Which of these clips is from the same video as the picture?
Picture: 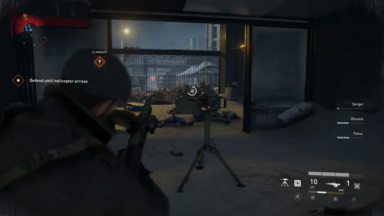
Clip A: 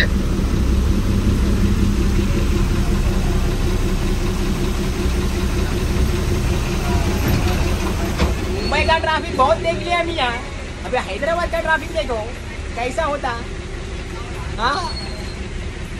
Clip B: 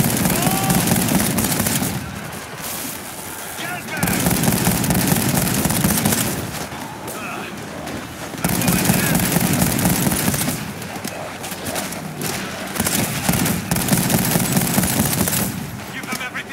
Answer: B